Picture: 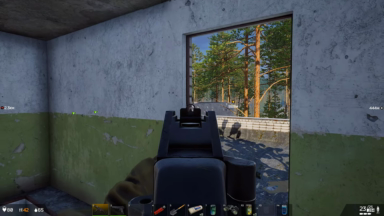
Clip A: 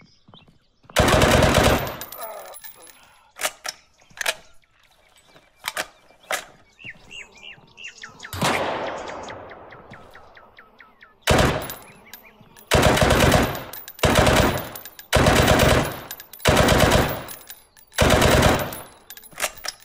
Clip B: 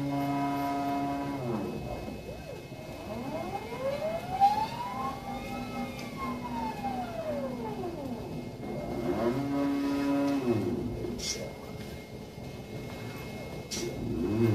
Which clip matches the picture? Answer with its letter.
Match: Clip A